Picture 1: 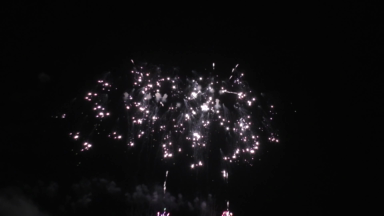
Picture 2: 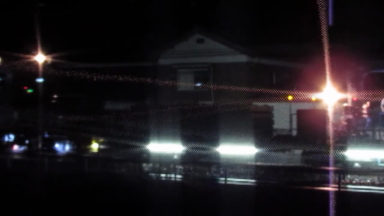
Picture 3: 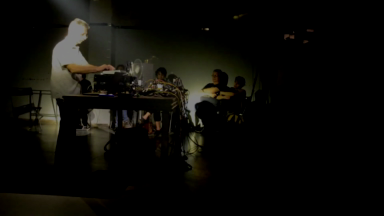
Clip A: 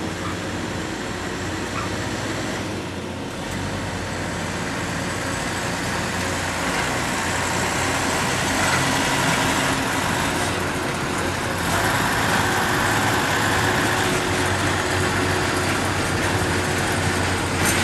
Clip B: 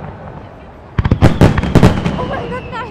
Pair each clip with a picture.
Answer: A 2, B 1